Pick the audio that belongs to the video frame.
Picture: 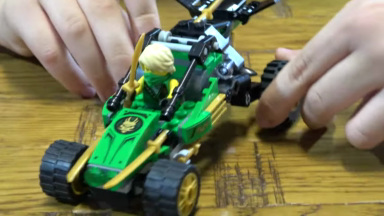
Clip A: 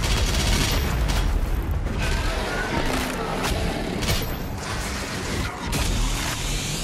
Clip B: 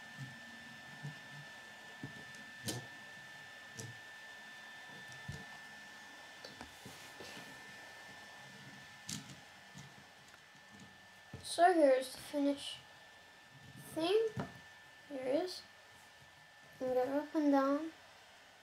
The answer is B